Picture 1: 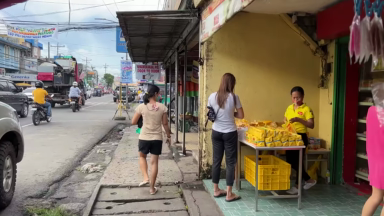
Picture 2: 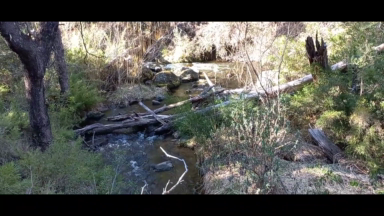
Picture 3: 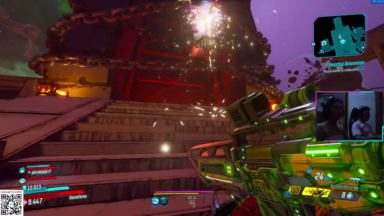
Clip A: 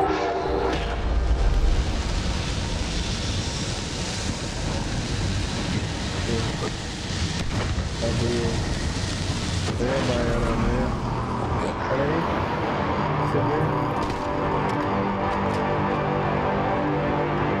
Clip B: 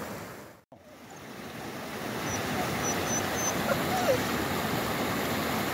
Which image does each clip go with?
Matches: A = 3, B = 2